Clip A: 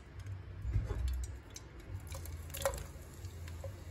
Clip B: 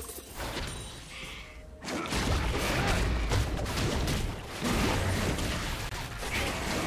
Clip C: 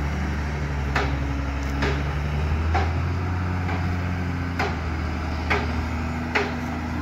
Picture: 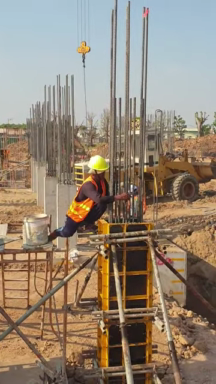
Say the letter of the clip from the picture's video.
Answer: C